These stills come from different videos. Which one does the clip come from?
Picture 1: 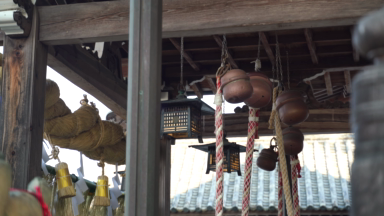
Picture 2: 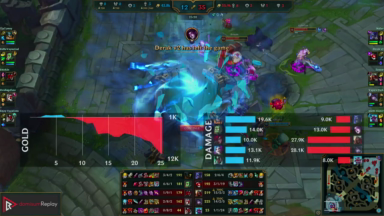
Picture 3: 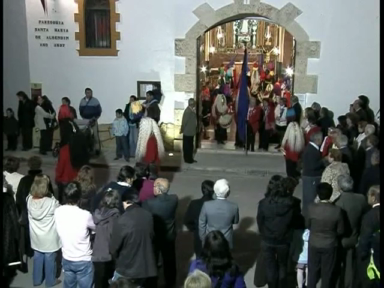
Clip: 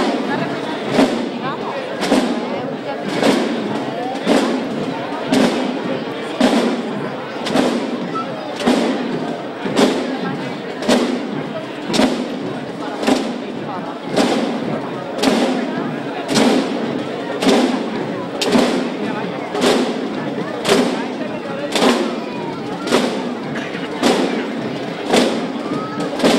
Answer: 3